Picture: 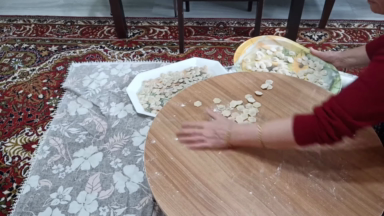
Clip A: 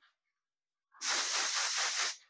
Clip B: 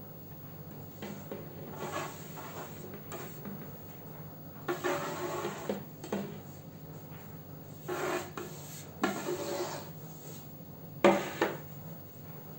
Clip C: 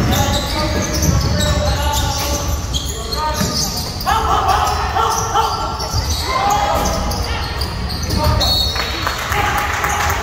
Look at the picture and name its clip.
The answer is B